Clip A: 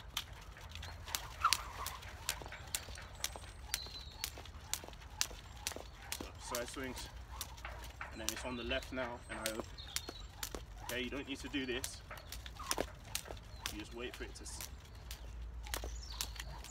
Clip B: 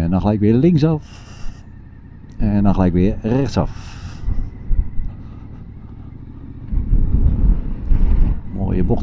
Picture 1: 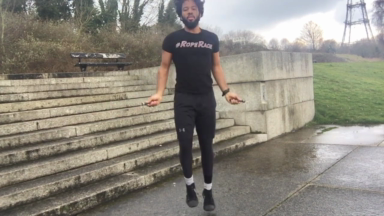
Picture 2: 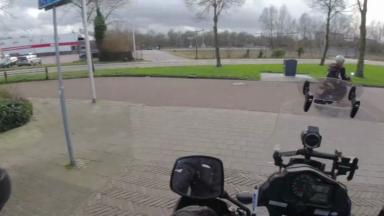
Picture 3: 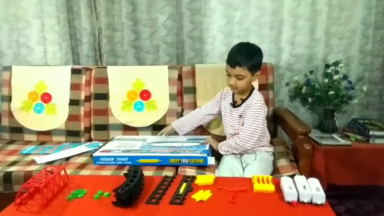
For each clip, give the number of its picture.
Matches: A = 1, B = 2